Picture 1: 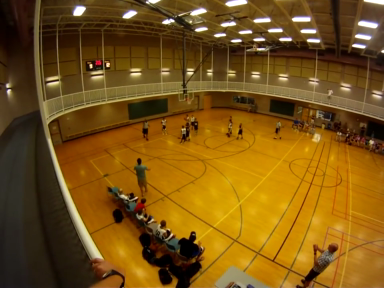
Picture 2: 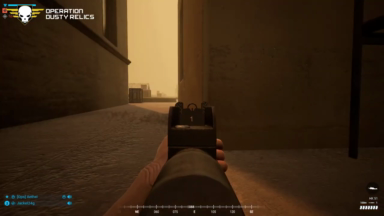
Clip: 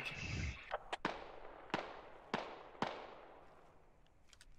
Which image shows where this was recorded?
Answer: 2